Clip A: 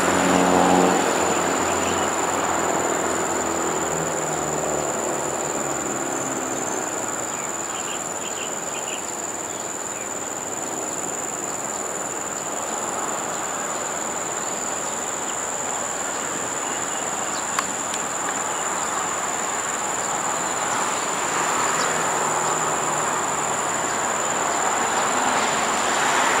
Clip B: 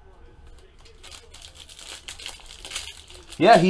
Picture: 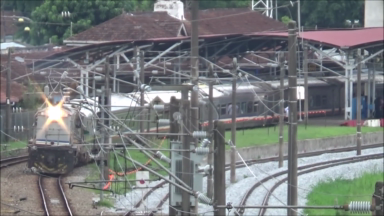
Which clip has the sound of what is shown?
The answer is A